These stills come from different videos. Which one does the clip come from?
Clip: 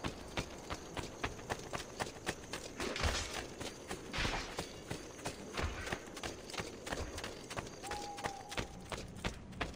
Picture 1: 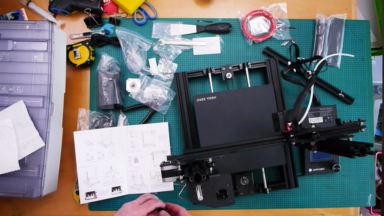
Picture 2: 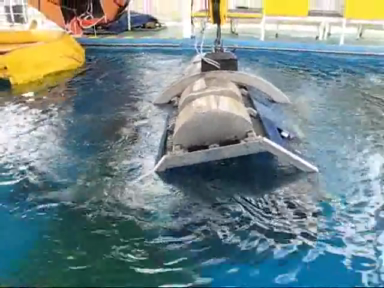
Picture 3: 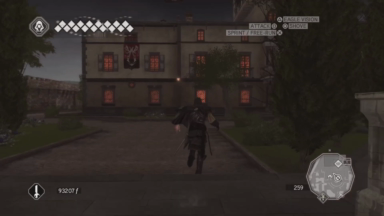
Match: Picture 3